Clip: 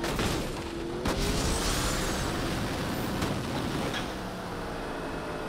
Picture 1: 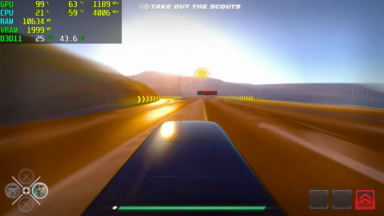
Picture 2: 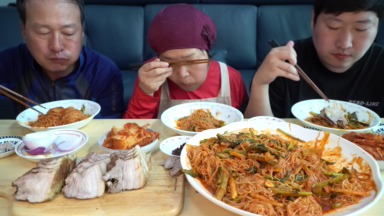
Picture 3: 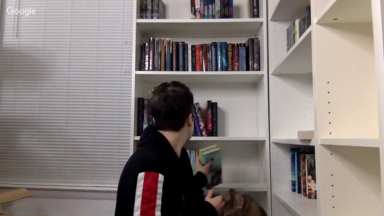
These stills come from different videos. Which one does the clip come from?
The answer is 1